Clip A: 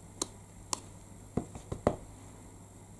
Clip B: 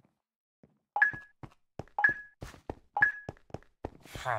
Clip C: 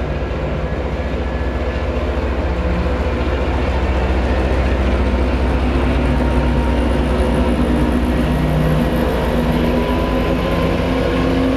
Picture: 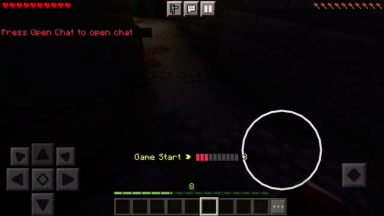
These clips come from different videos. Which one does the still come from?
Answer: B